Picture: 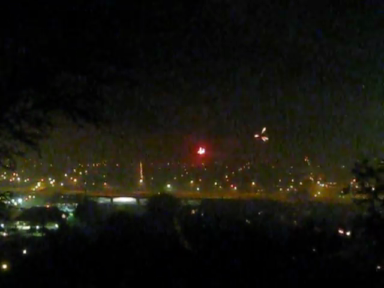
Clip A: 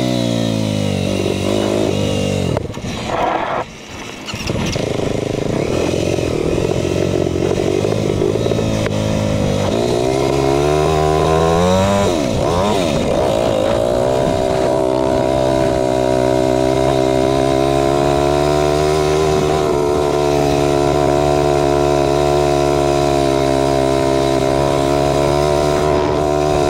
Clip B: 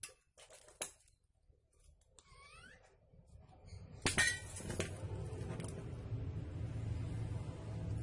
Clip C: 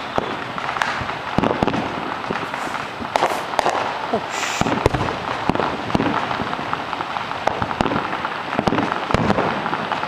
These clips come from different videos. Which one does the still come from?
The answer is C